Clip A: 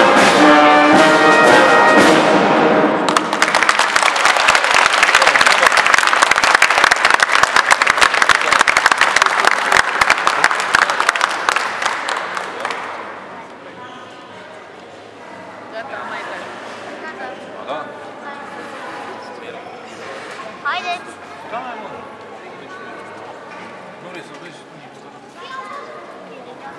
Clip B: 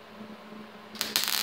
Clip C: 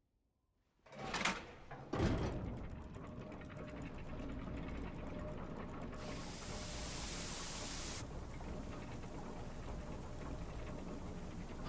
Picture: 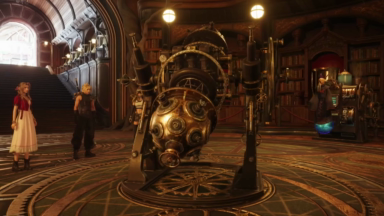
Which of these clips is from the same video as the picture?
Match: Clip C